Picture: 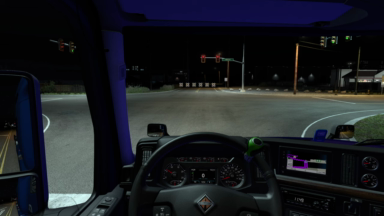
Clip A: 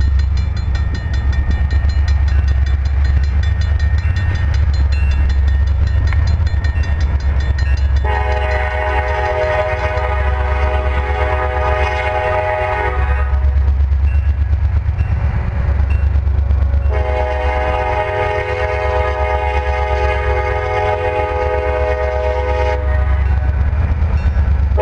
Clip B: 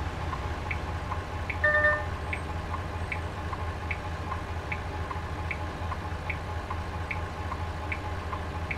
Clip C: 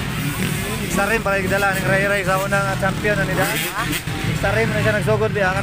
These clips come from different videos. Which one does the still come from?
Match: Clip B